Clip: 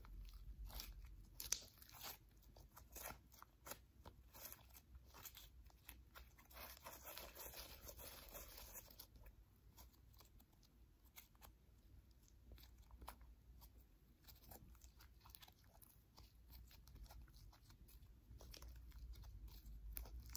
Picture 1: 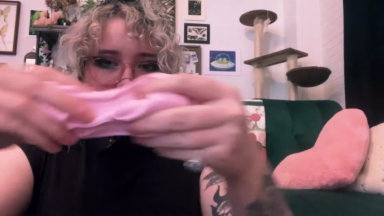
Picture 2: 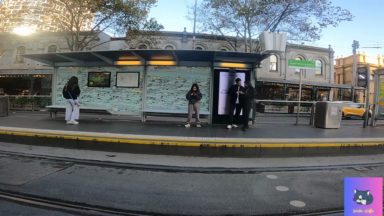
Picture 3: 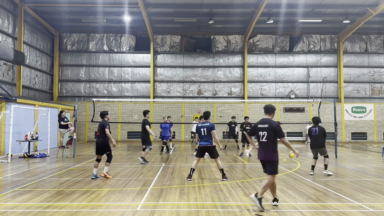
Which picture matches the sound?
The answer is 1